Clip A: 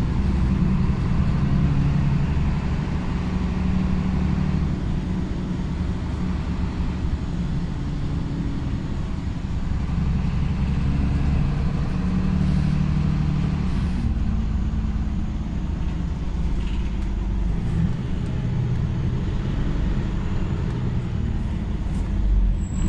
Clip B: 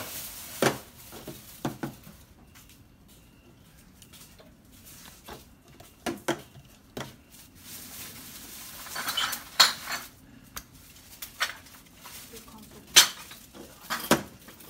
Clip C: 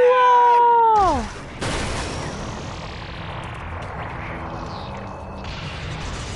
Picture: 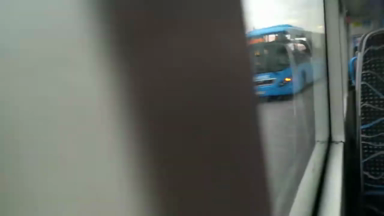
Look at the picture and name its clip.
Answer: A